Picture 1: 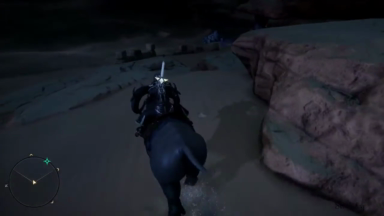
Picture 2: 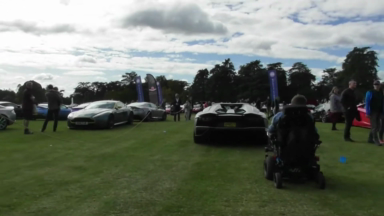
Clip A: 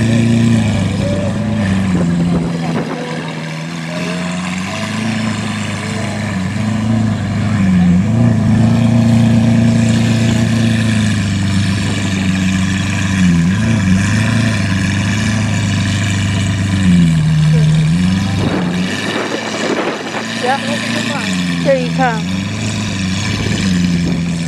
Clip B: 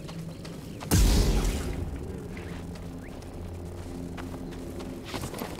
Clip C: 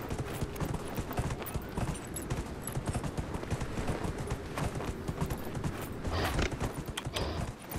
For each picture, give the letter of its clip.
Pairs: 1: C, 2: A